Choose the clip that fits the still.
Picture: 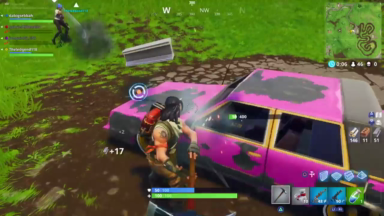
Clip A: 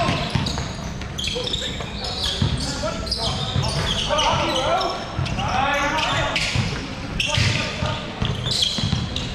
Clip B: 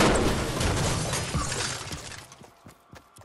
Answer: B